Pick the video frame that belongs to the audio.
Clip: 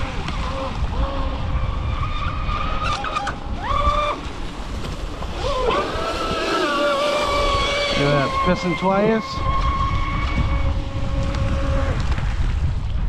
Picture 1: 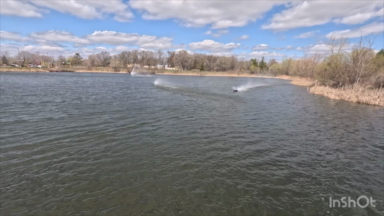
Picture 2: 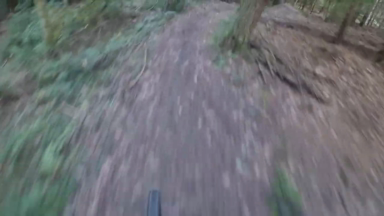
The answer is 1